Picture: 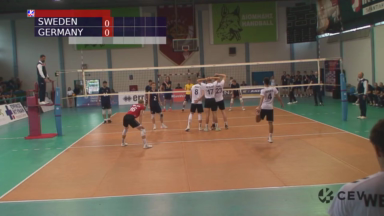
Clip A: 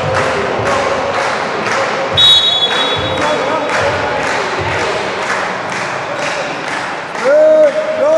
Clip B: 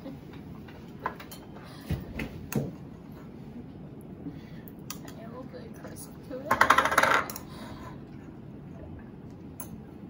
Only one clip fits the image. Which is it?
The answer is A